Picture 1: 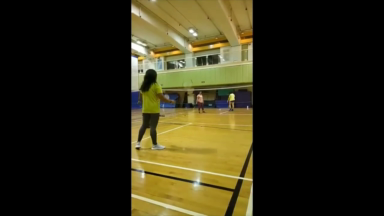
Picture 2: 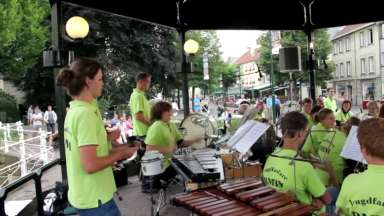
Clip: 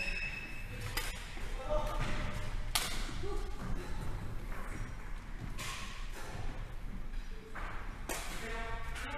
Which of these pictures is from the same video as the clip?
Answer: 1